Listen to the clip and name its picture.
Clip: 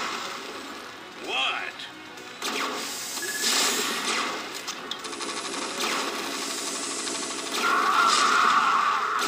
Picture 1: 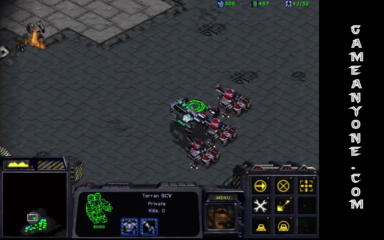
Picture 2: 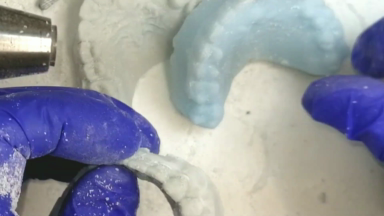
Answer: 1